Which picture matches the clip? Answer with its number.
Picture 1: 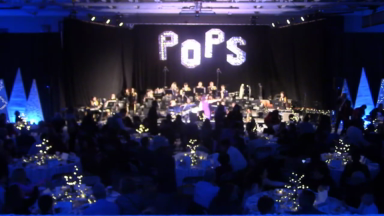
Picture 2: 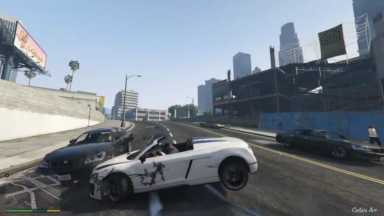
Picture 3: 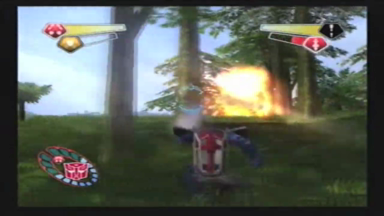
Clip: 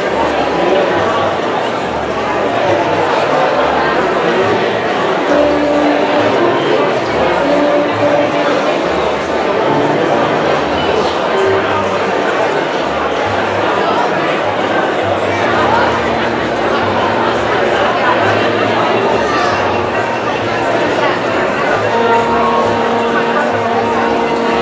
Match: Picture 1